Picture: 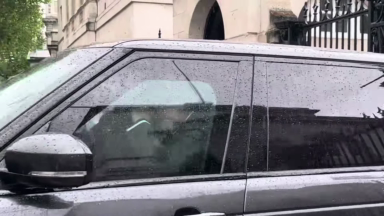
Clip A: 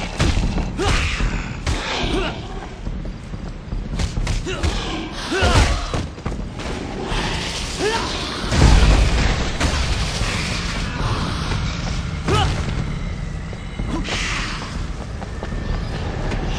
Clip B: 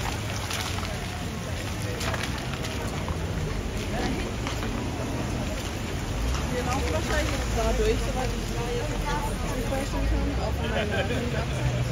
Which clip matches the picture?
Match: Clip B